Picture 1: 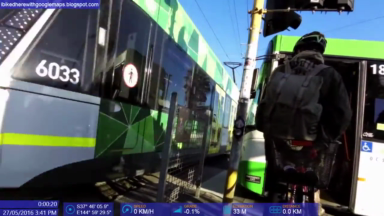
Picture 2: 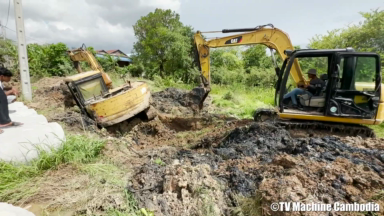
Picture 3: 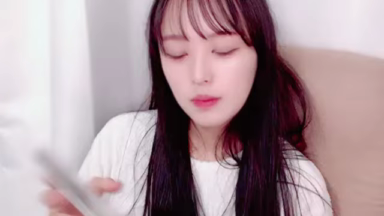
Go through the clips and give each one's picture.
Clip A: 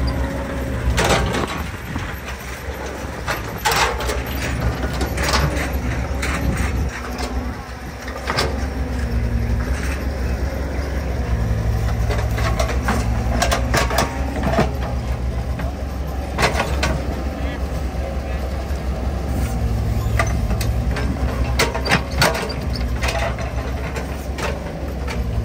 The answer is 2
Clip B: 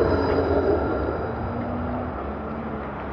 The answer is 1